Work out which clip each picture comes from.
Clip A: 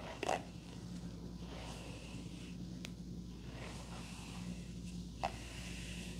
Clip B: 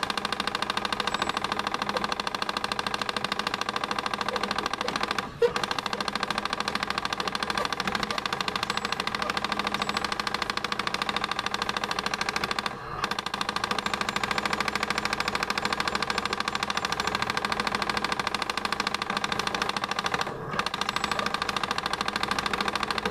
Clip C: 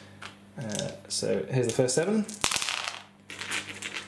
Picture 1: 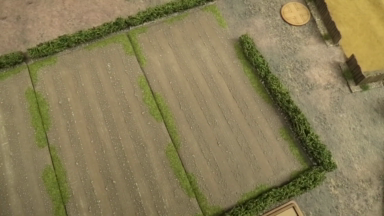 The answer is C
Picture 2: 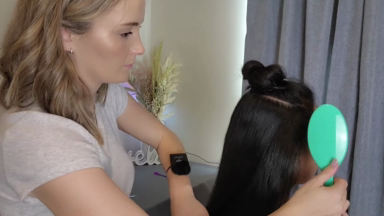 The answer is A